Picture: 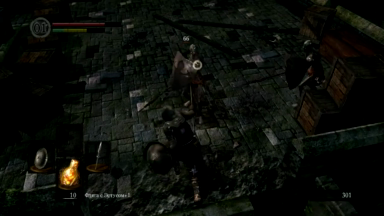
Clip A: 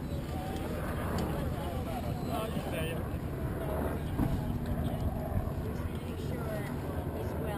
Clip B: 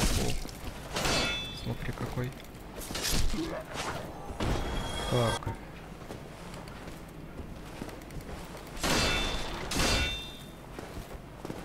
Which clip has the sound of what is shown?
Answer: B